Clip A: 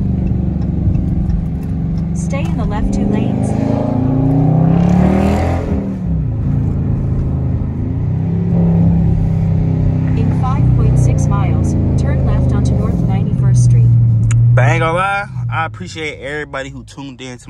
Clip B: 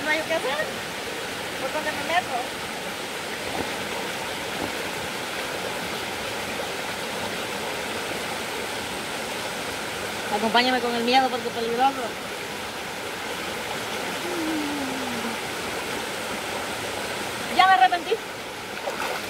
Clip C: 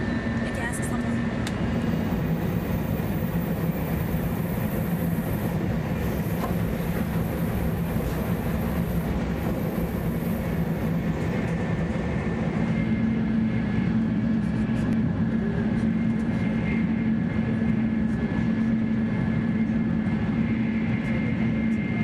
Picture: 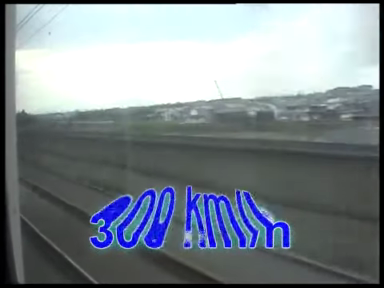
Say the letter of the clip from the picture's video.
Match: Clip C